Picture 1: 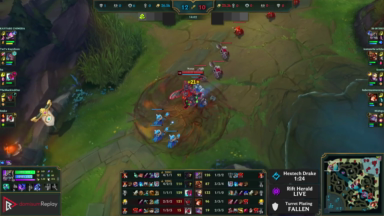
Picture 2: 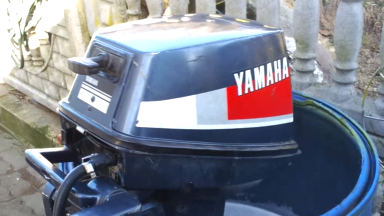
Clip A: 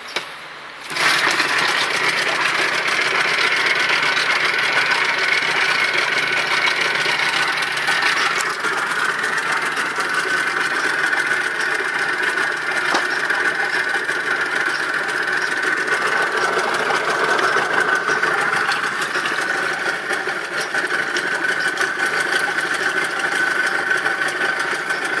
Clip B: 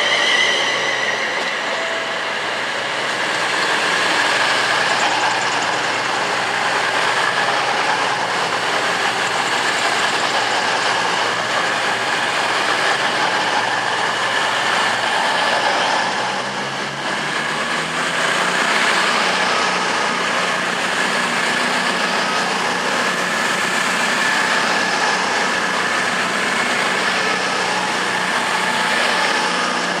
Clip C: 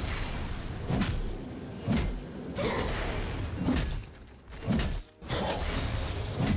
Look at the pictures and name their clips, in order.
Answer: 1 C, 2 A